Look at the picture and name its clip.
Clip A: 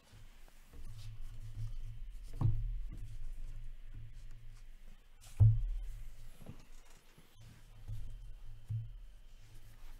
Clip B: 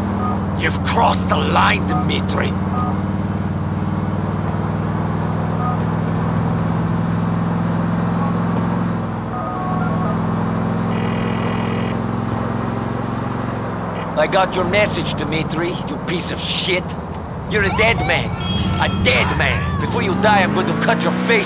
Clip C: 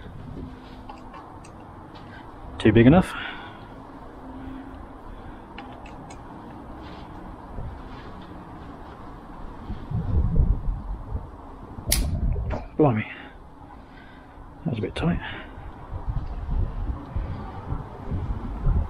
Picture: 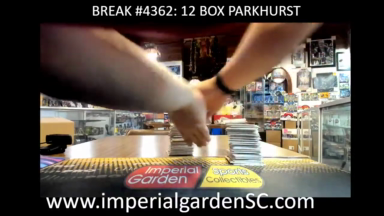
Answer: A